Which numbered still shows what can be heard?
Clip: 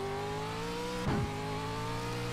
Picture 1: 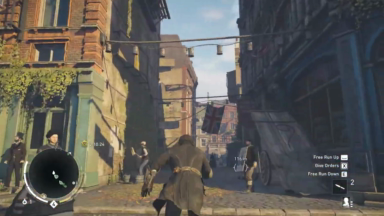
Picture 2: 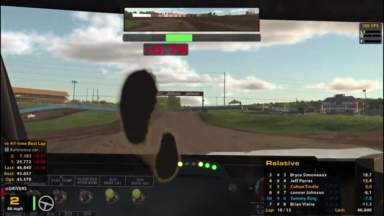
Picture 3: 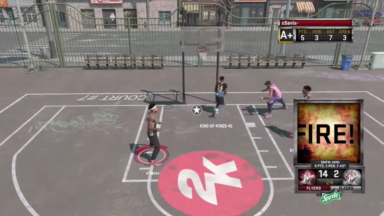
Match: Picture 2